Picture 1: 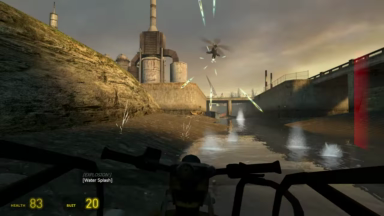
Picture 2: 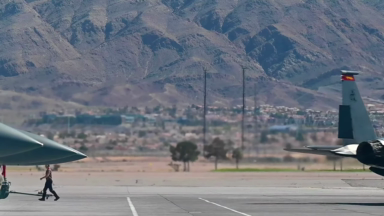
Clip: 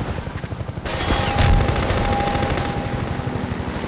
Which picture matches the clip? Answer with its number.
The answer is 1